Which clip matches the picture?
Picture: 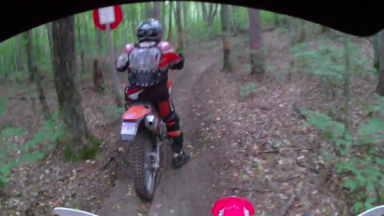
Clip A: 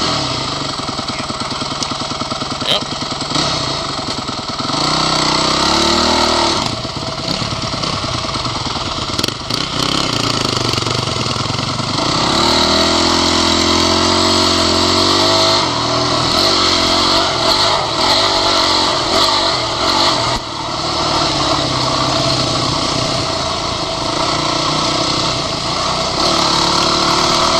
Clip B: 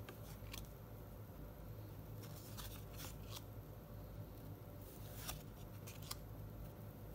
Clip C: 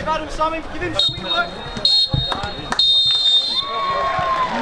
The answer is A